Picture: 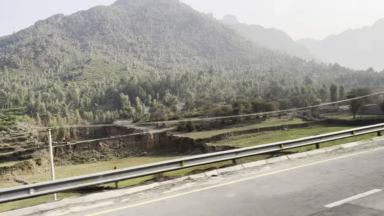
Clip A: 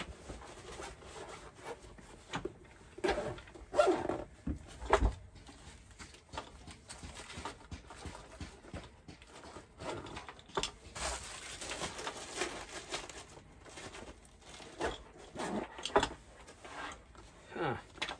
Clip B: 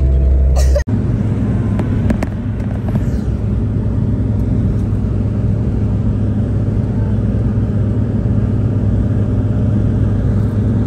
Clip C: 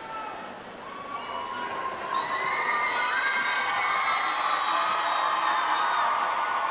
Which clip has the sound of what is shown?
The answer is B